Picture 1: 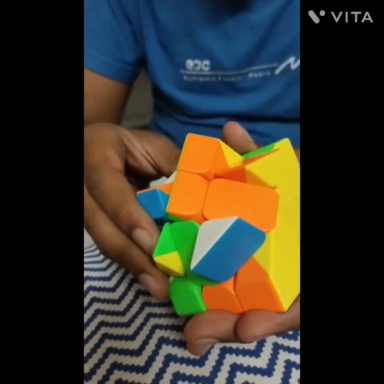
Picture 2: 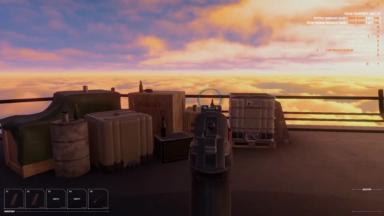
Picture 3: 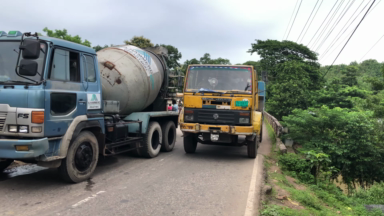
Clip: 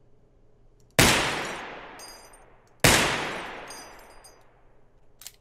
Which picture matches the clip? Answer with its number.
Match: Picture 2